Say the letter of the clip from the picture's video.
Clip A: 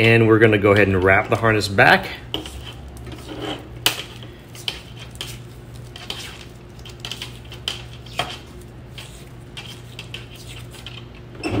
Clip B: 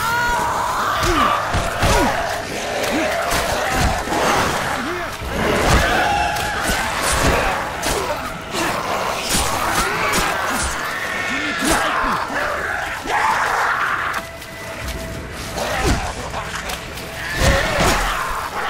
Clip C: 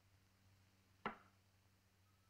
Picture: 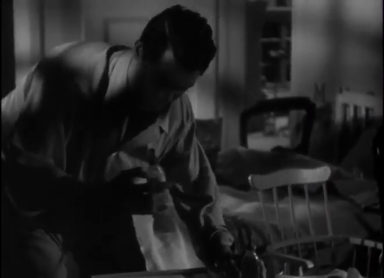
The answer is C